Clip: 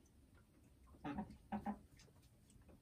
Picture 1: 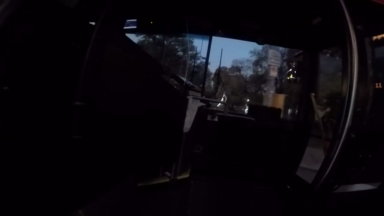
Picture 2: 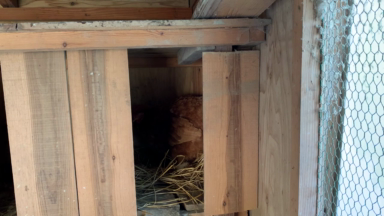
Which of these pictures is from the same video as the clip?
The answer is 2